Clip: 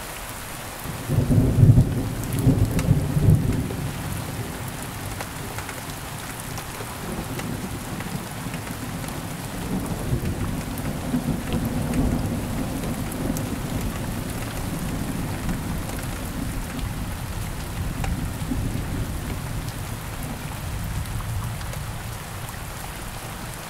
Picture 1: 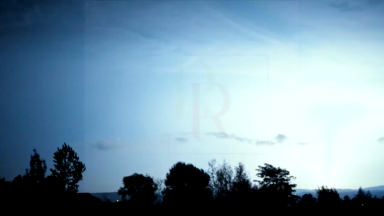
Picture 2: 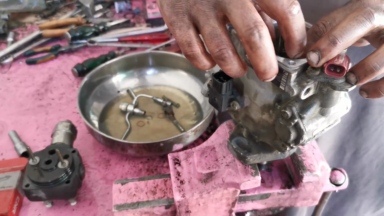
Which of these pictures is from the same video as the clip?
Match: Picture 1